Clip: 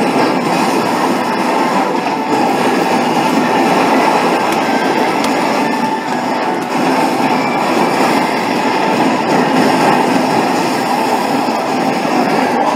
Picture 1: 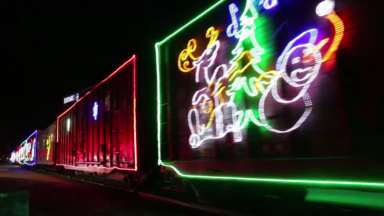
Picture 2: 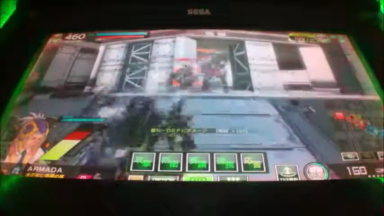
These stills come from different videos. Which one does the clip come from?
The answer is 2